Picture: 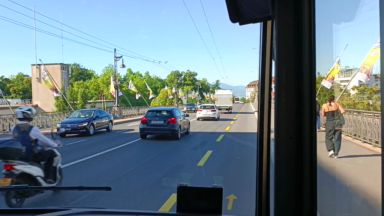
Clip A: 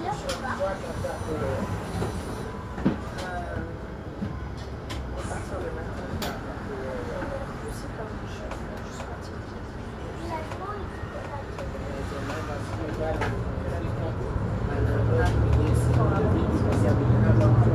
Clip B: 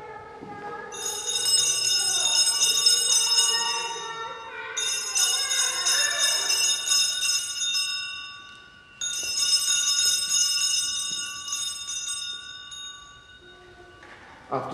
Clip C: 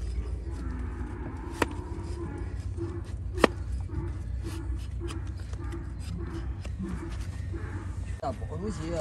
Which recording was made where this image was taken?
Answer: A